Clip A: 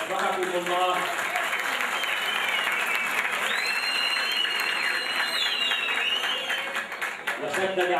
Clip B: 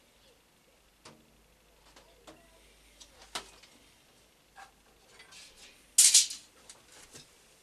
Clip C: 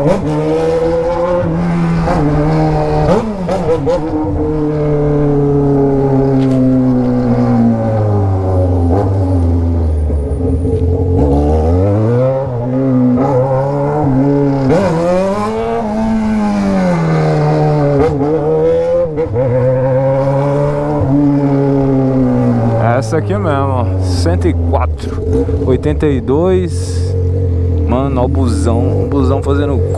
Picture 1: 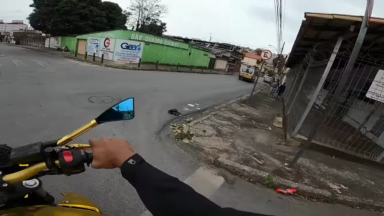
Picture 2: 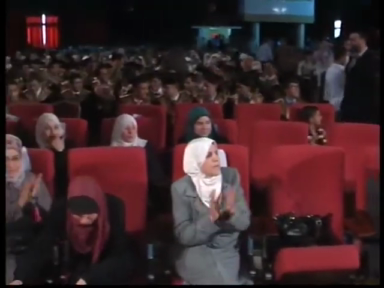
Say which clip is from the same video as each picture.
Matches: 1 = C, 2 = A